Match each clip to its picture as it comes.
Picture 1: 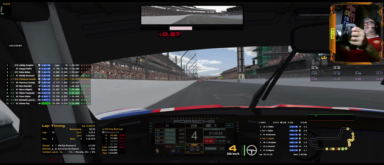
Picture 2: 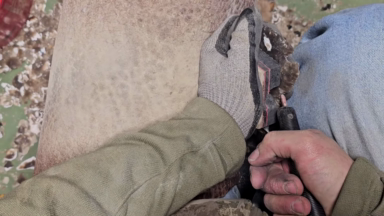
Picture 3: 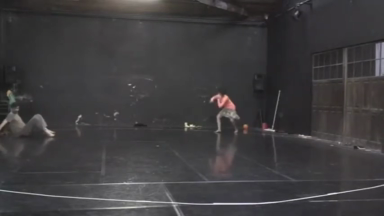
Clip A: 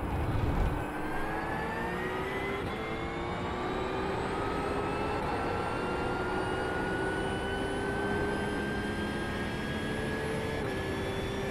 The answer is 1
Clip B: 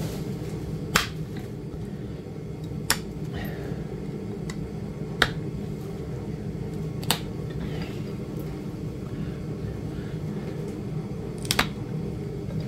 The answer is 2